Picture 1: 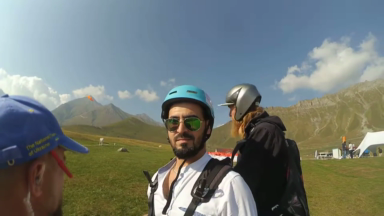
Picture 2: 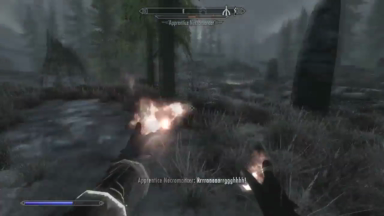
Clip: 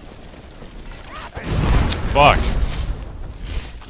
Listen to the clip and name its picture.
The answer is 2